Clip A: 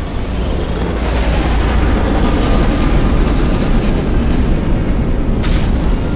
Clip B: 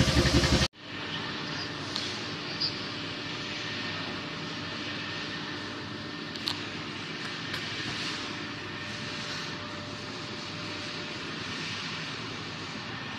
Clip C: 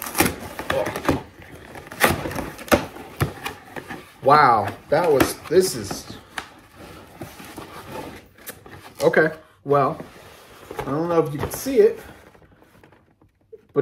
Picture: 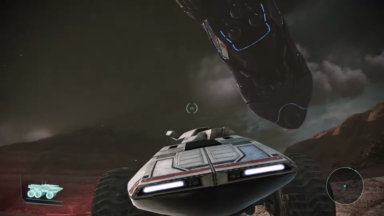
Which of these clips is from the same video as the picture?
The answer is A